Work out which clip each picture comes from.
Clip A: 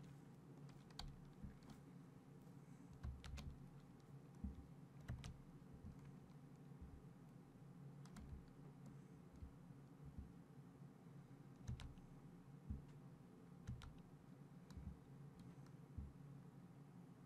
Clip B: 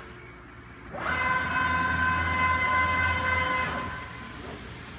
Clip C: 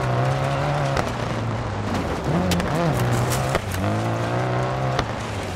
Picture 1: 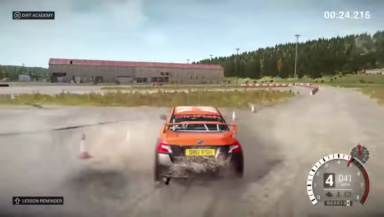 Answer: C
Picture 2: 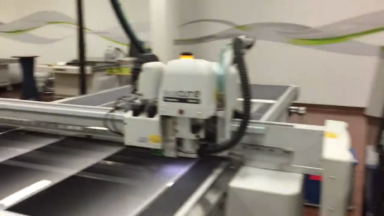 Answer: B